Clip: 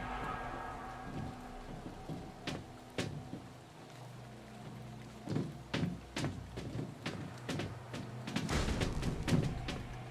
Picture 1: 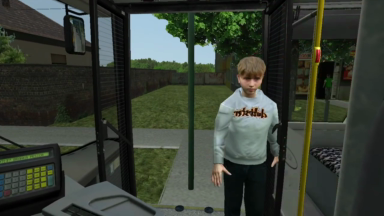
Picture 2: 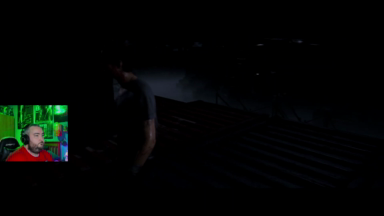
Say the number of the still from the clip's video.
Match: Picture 2